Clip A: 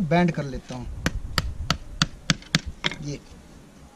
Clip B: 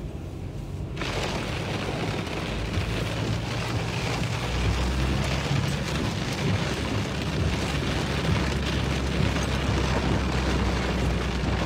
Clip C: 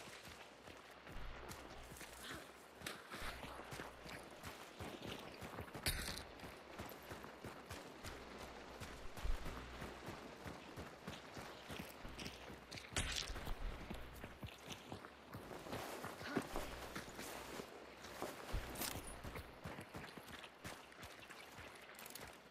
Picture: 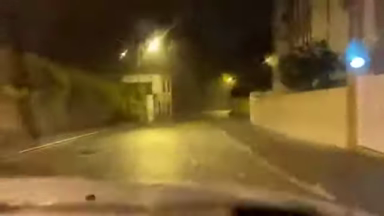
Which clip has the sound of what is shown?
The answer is B